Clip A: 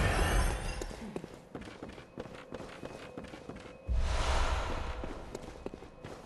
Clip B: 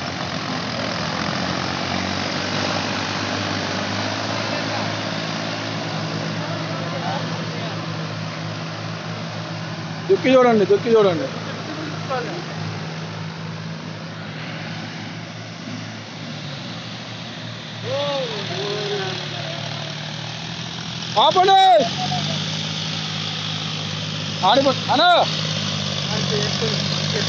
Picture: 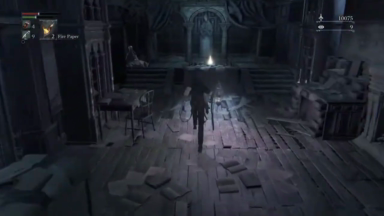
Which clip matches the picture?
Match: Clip A